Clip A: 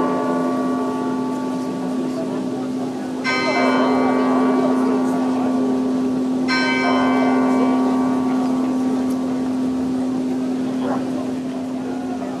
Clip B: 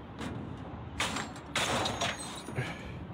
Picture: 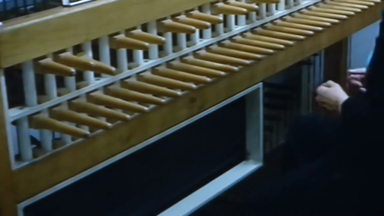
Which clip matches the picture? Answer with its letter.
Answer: A